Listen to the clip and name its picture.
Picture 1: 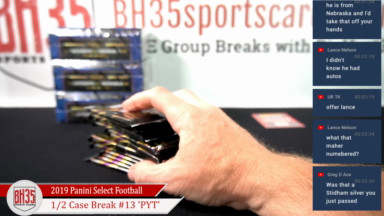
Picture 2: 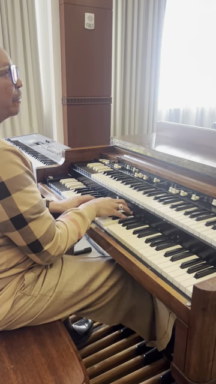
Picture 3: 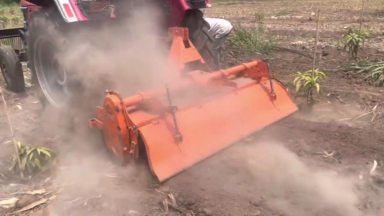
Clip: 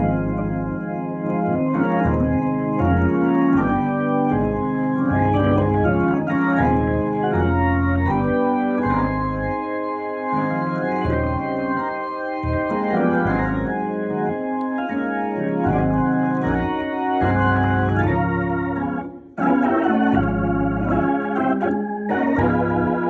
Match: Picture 2